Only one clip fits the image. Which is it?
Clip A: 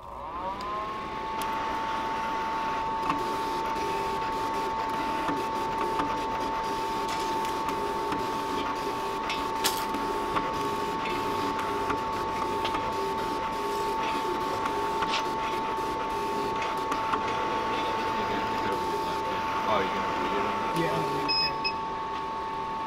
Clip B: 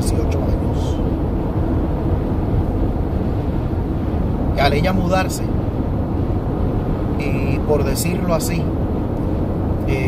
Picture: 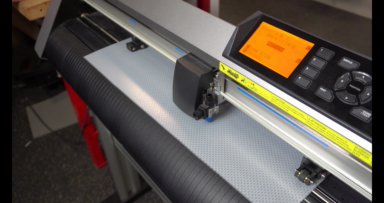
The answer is A